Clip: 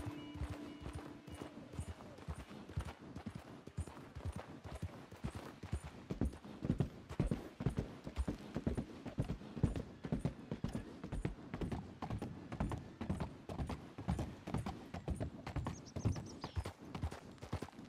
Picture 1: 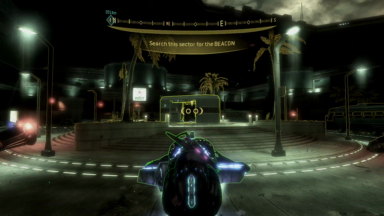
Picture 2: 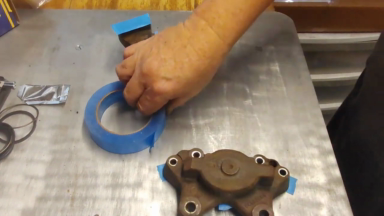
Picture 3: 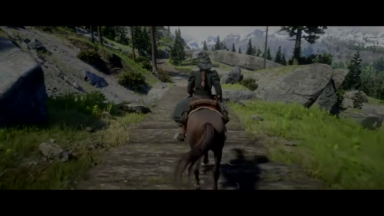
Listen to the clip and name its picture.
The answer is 3